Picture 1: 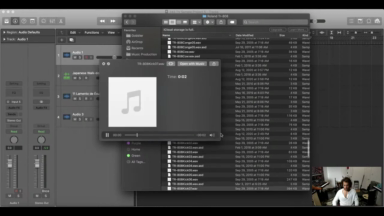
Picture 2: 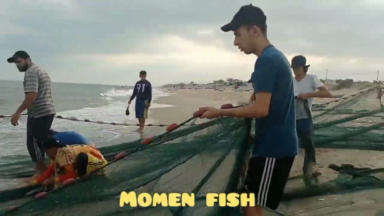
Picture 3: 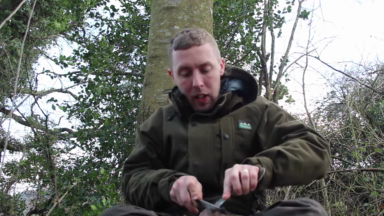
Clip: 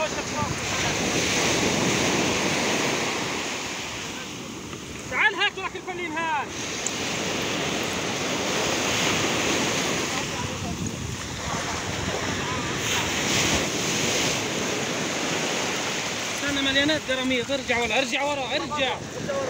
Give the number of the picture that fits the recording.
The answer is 2